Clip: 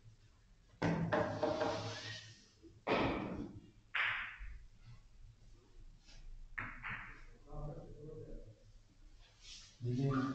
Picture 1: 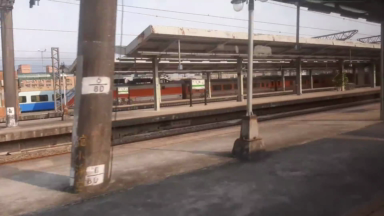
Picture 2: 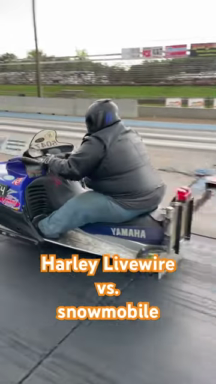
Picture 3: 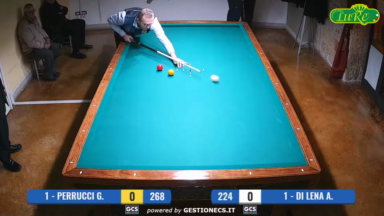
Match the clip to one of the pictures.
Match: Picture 3